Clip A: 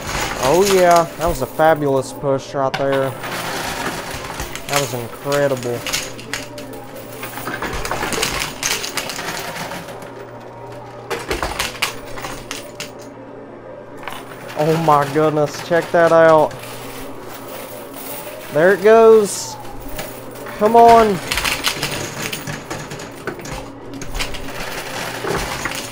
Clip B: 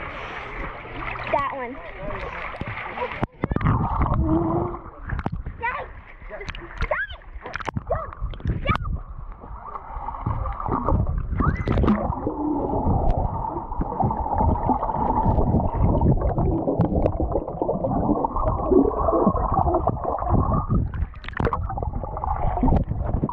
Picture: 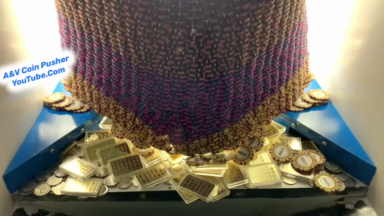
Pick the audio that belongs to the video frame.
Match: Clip A